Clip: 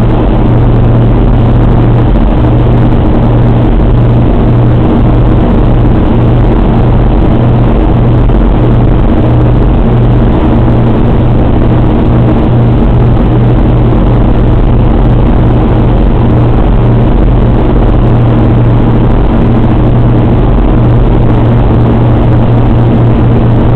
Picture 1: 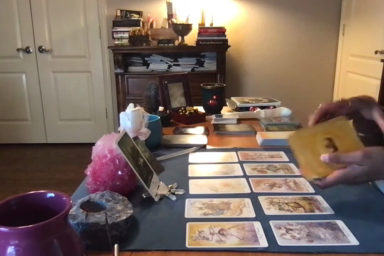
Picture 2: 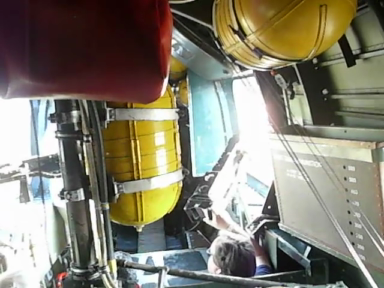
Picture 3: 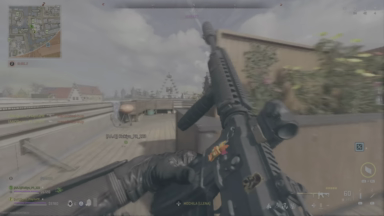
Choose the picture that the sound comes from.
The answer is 2